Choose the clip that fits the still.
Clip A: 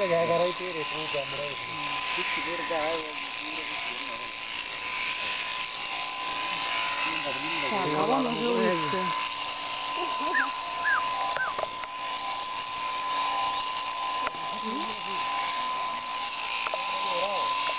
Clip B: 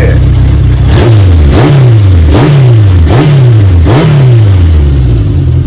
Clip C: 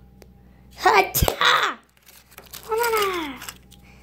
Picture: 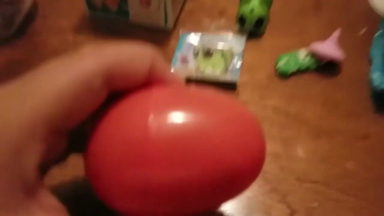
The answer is C